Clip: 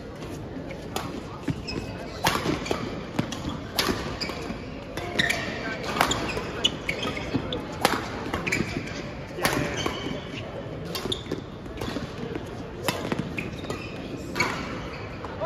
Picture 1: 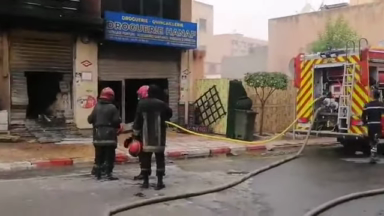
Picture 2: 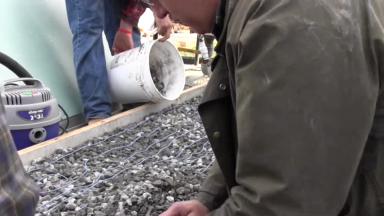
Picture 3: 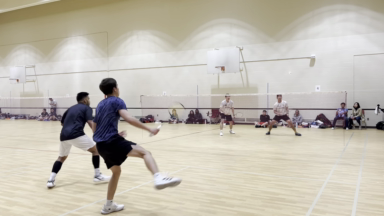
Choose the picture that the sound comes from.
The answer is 3